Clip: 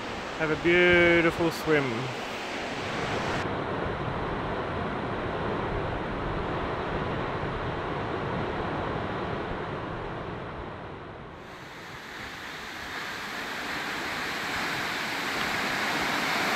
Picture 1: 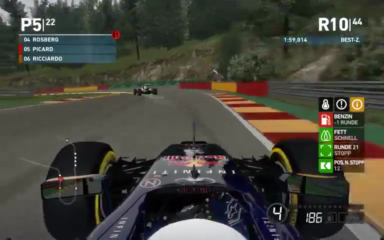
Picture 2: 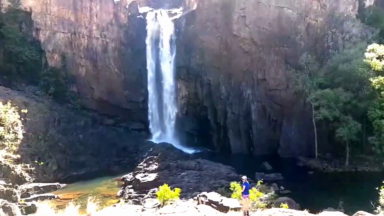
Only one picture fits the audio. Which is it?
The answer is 2